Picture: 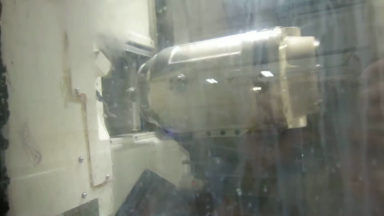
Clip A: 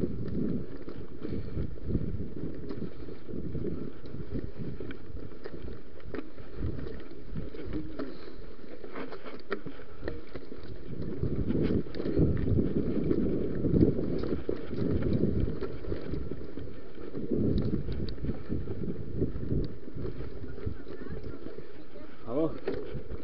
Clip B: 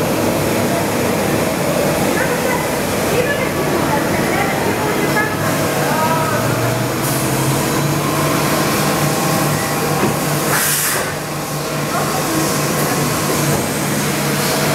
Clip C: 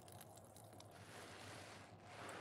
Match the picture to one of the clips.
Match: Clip B